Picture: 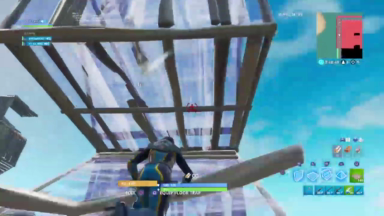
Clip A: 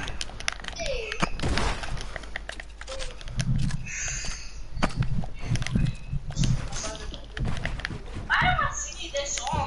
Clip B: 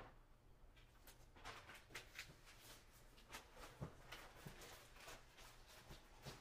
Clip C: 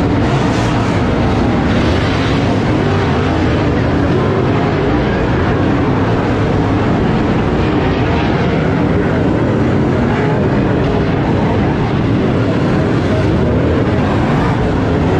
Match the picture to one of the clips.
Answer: A